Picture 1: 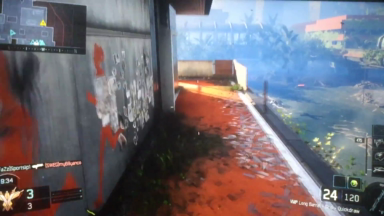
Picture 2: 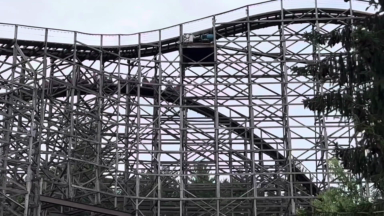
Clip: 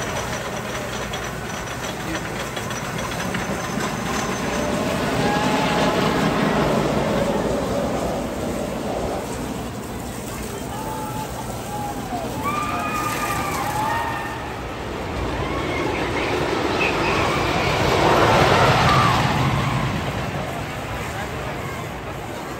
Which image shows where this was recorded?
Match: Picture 2